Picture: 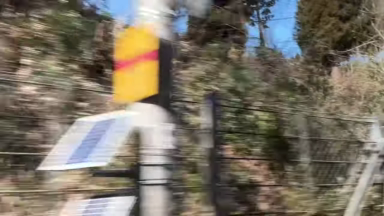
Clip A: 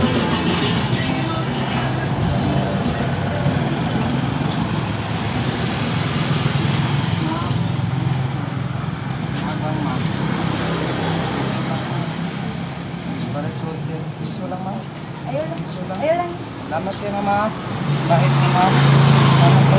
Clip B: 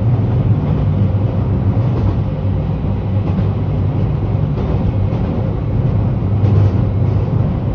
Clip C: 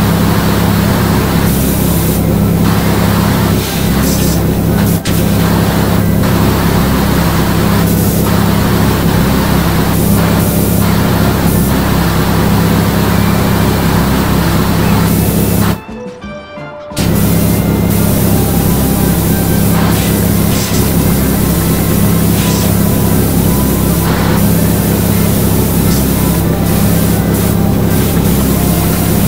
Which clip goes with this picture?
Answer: B